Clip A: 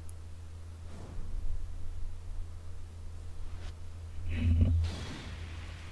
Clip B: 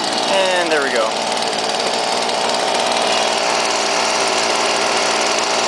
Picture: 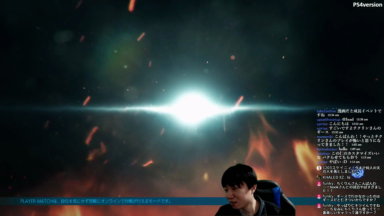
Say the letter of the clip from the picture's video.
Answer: A